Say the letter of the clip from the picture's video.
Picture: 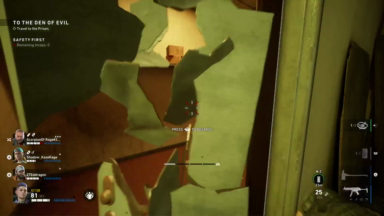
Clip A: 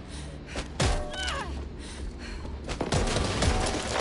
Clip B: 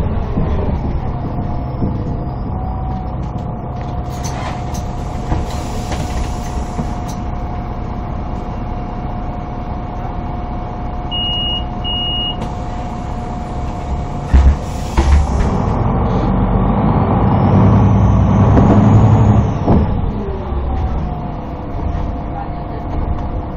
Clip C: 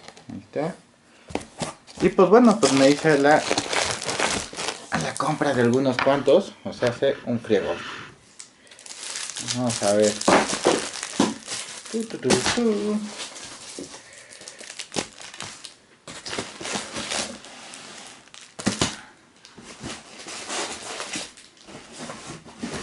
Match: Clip A